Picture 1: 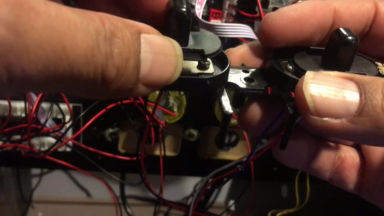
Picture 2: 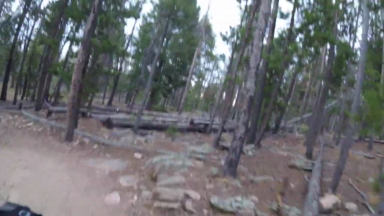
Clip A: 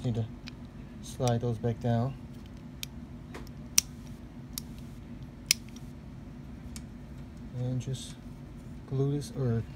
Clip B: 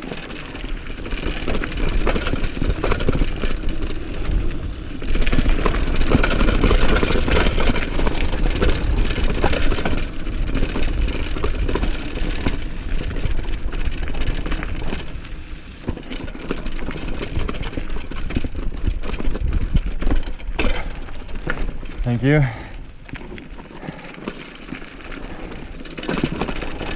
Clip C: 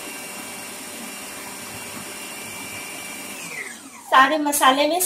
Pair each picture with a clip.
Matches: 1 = A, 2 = B